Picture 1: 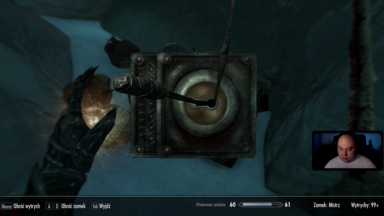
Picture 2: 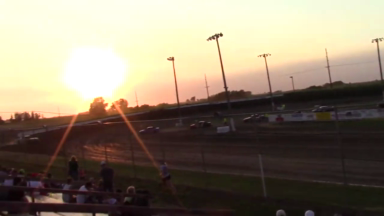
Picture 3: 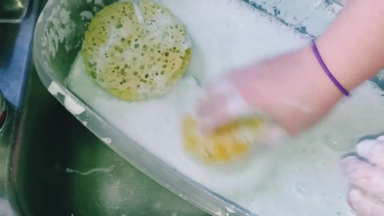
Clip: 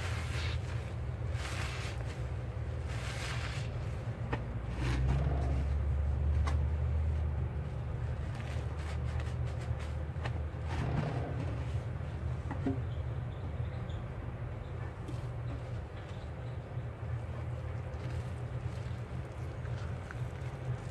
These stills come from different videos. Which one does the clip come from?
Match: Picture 3